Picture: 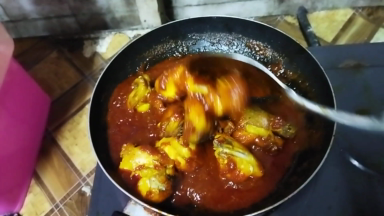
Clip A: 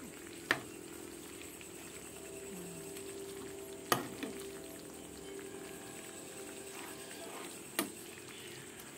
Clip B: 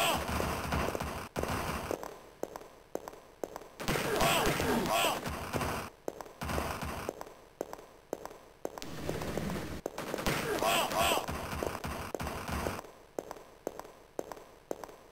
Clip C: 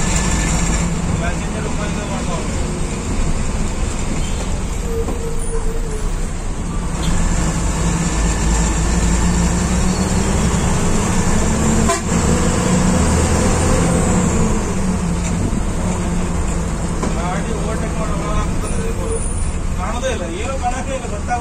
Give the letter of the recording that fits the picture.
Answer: A